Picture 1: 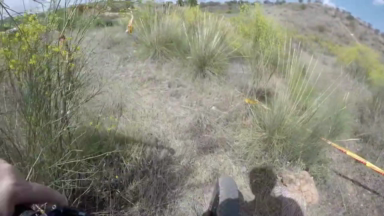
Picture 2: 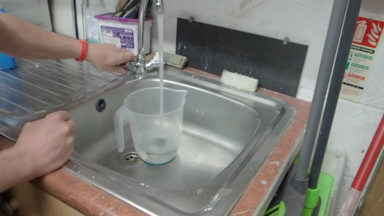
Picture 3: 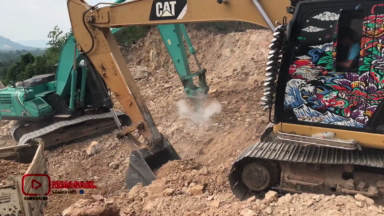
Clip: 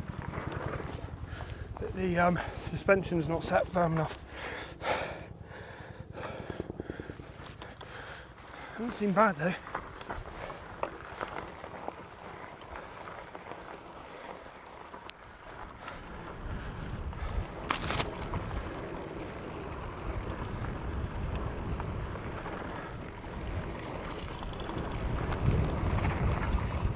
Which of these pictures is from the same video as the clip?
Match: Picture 1